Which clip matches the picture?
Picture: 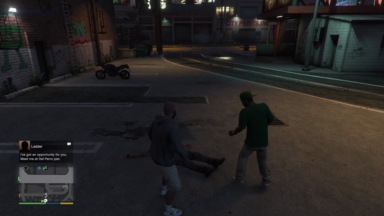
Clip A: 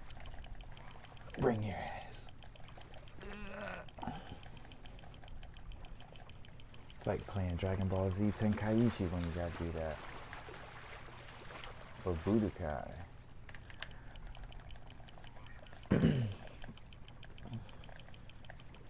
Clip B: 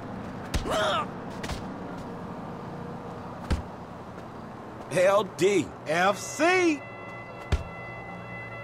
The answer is B